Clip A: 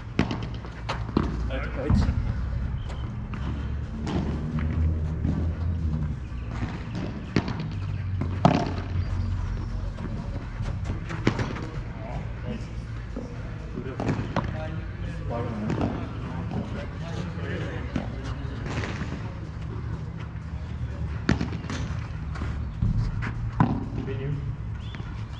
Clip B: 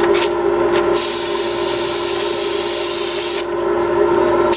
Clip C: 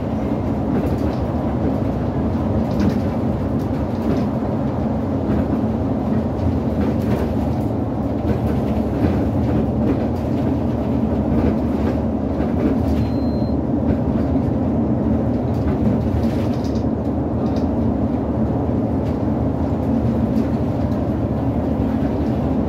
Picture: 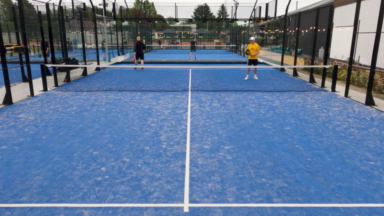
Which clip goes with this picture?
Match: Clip A